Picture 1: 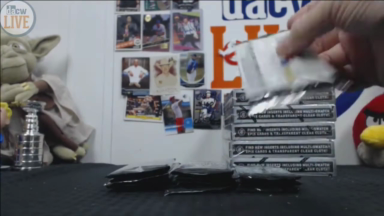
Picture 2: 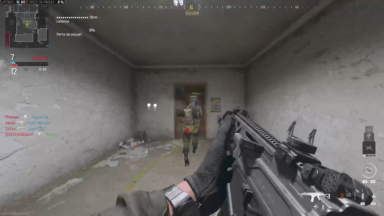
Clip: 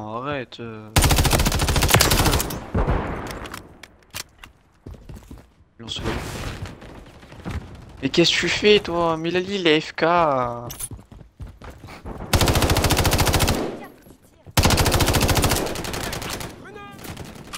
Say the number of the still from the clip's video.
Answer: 2